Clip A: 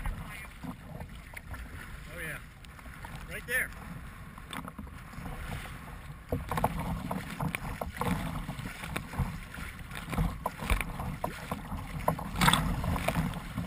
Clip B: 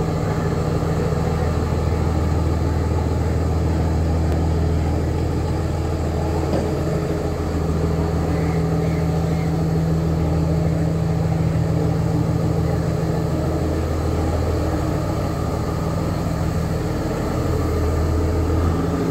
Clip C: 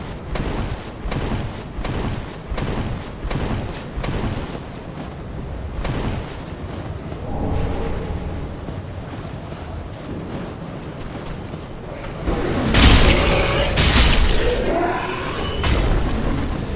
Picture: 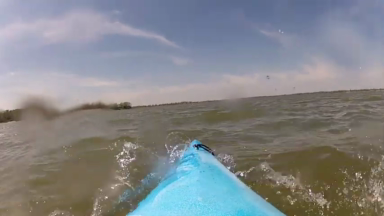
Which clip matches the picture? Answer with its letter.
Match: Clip A